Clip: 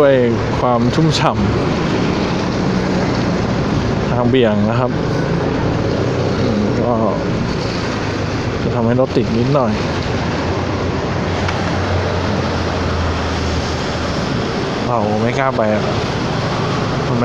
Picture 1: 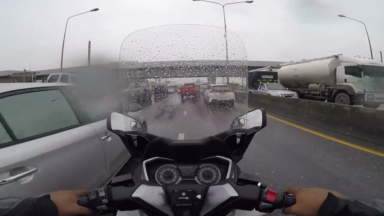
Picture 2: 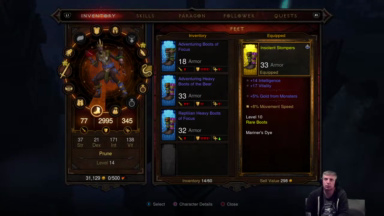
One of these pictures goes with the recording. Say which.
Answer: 1